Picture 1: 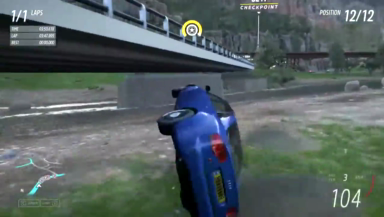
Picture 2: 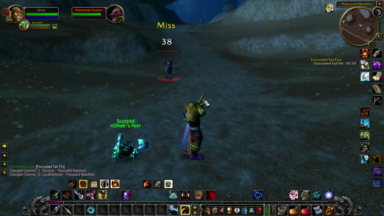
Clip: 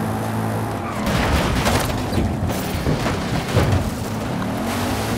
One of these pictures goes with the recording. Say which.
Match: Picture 1